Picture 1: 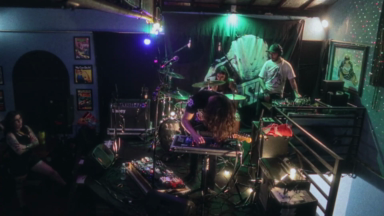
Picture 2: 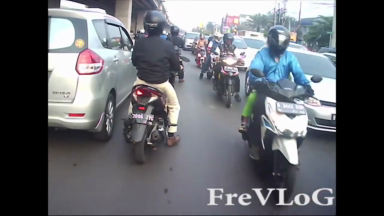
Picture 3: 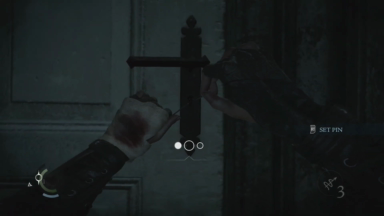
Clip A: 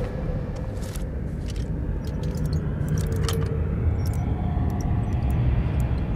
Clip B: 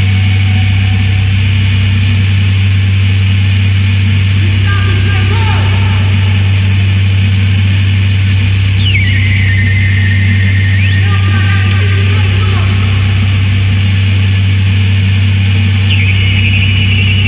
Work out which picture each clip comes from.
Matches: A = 3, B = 1